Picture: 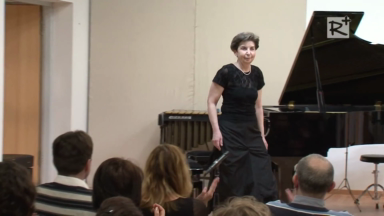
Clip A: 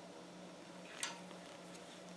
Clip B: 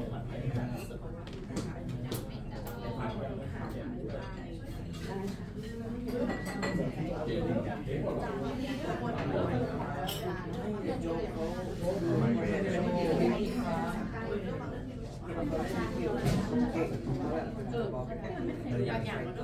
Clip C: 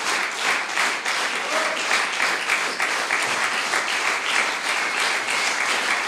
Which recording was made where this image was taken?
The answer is C